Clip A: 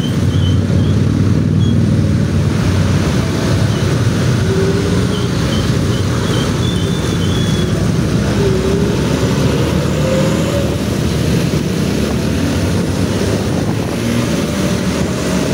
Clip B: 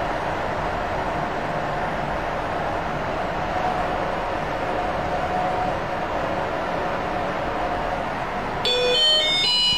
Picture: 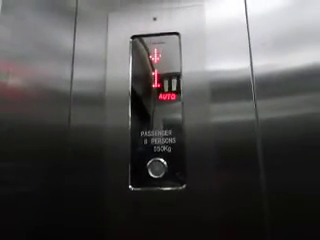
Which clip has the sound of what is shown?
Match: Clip B